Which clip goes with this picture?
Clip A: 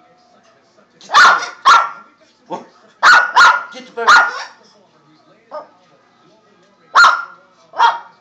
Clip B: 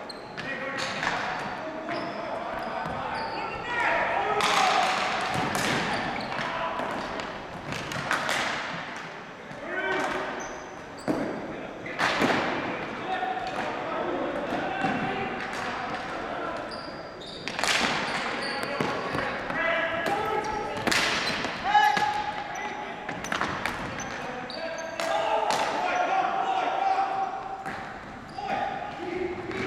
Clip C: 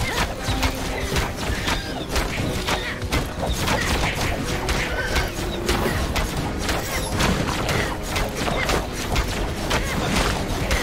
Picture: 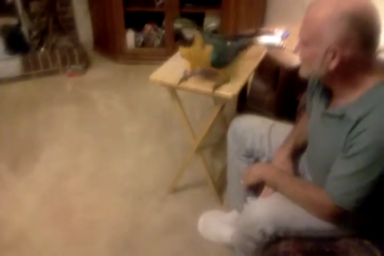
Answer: A